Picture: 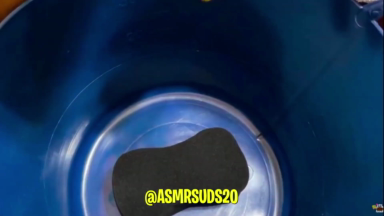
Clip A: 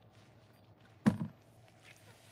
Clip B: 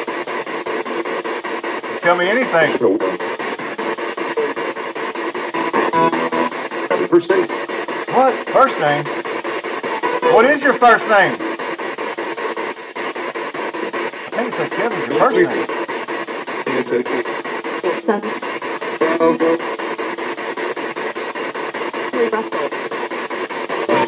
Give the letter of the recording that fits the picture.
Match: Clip A